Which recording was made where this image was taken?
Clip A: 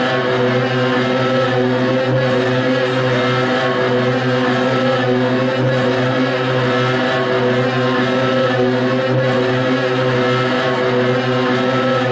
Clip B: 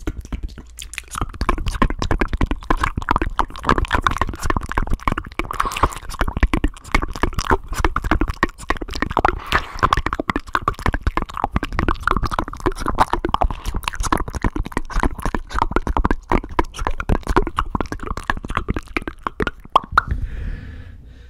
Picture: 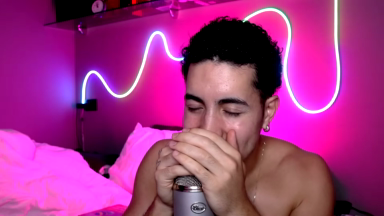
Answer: B